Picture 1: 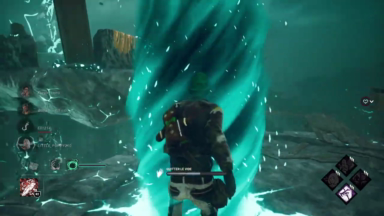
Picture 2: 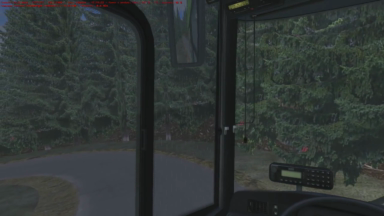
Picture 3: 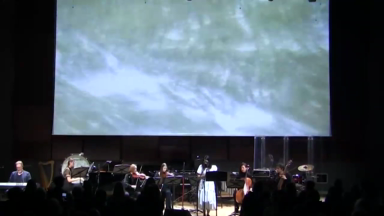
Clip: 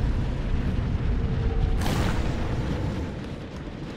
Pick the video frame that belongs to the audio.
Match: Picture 1